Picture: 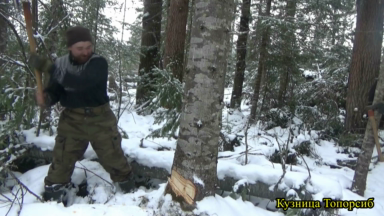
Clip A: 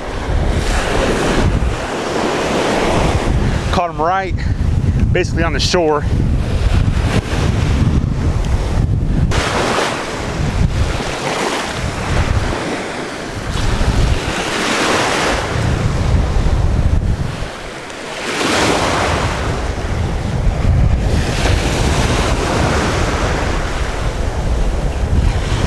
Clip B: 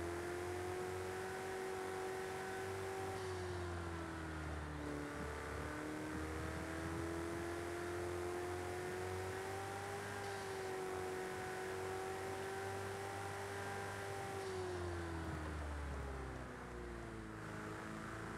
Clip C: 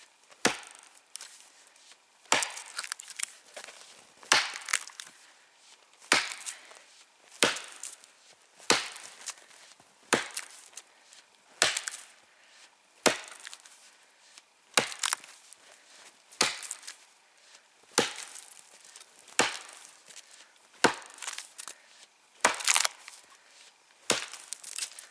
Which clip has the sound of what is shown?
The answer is C